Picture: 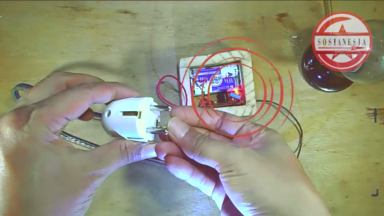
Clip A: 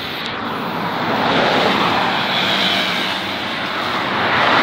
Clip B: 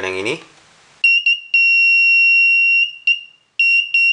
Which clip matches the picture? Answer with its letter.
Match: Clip B